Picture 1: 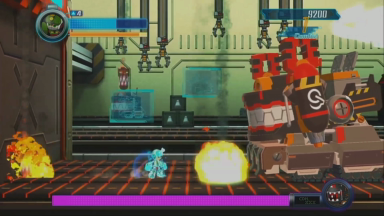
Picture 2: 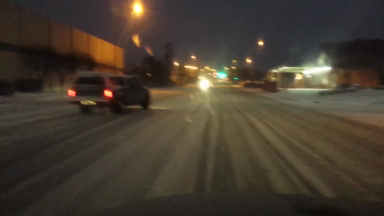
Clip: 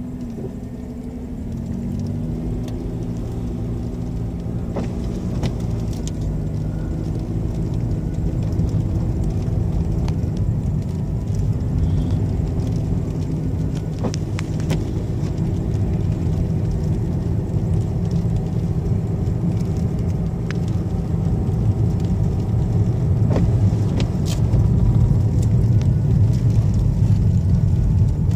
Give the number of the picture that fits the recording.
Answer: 2